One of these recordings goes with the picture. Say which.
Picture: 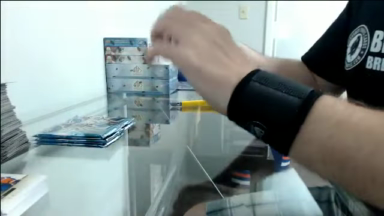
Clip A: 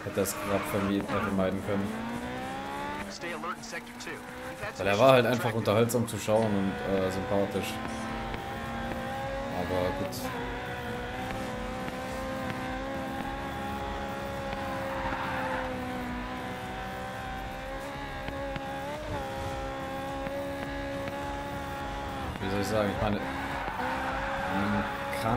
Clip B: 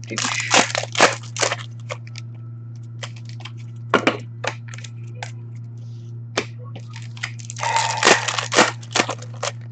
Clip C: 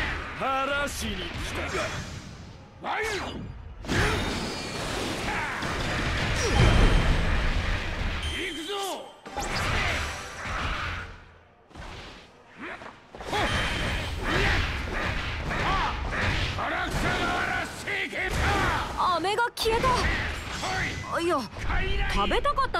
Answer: B